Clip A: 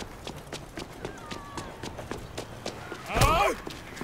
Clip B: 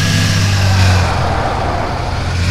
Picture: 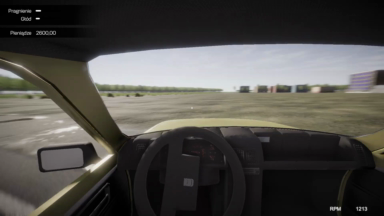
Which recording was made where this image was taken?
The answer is B